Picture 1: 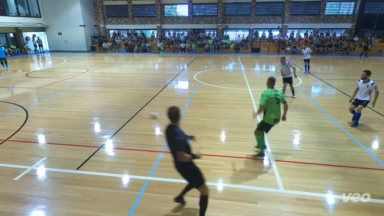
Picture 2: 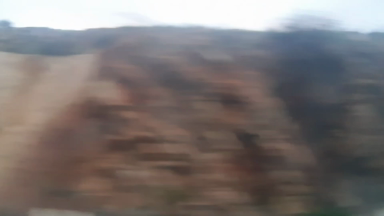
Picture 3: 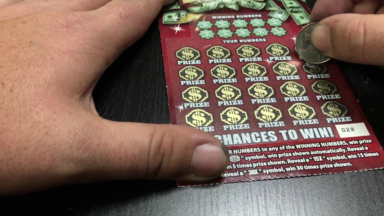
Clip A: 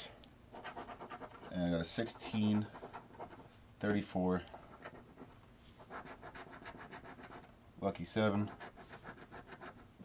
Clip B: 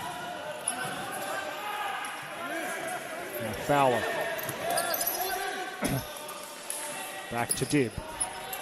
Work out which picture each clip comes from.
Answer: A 3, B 1